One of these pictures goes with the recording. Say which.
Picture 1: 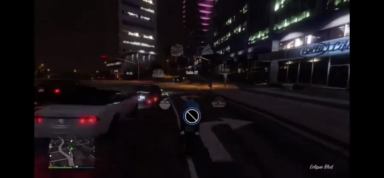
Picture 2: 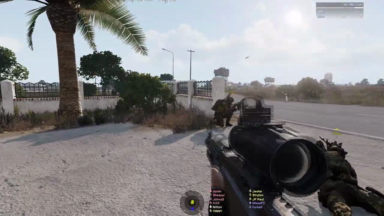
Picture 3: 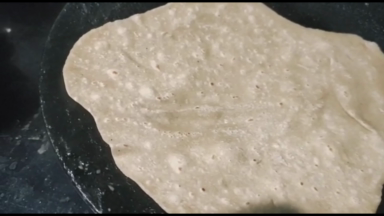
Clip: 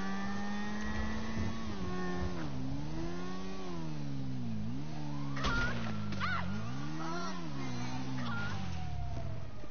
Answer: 1